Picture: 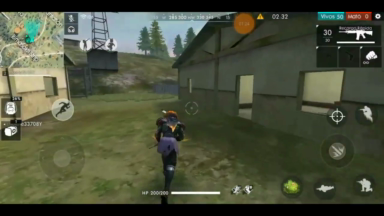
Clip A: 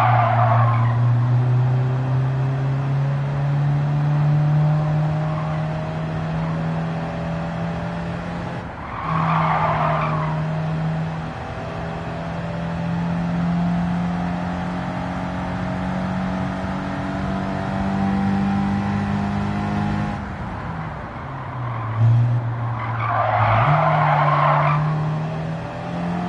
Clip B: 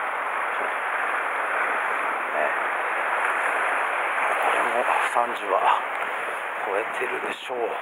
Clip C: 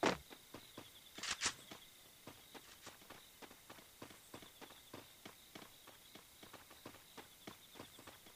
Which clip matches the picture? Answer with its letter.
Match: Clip C